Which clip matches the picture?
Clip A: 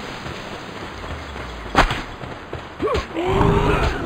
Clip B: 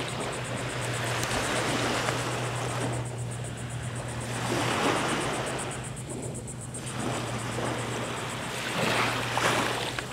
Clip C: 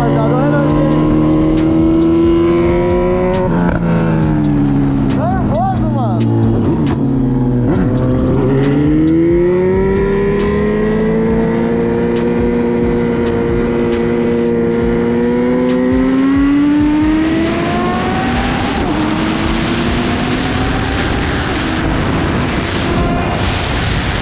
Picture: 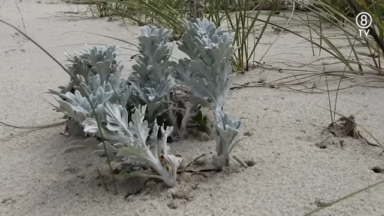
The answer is B